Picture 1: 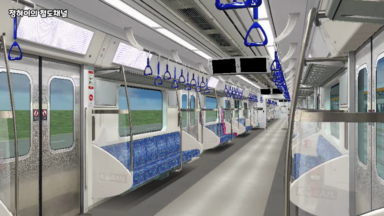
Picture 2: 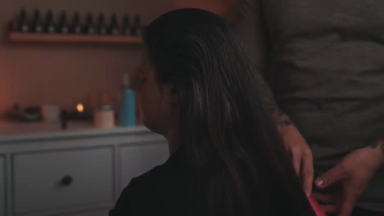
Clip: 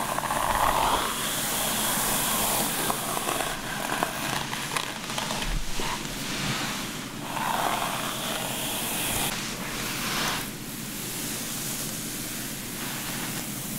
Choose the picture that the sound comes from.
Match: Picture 2